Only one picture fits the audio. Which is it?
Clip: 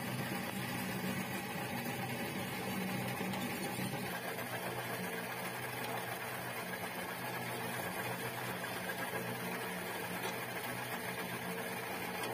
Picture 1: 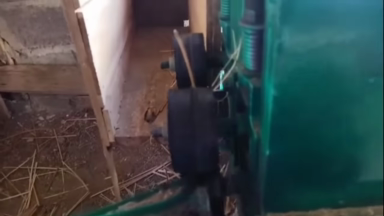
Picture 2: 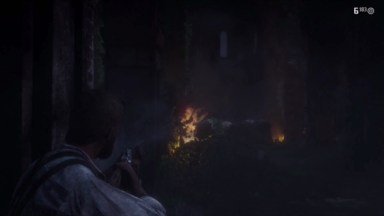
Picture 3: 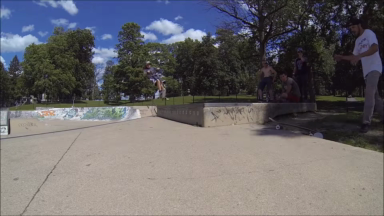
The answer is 1